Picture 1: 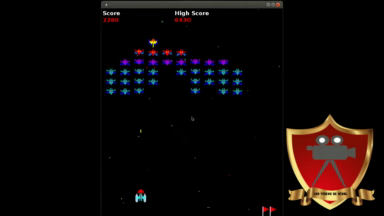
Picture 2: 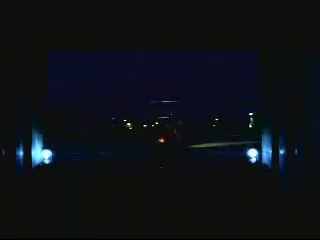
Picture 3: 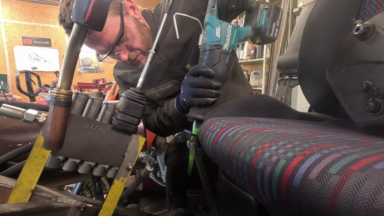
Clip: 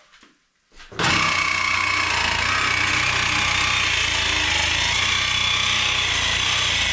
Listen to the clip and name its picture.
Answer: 3